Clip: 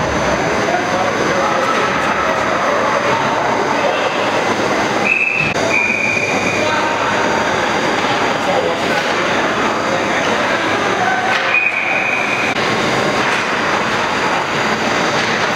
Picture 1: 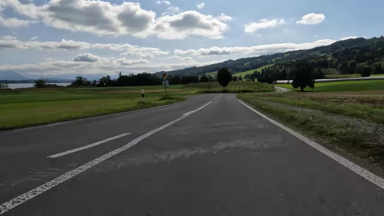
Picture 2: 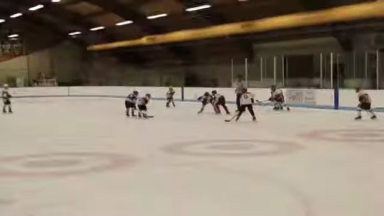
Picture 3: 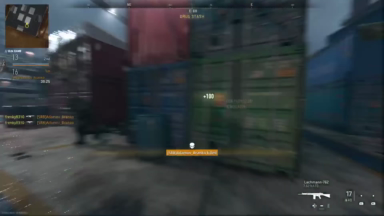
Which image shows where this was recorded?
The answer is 2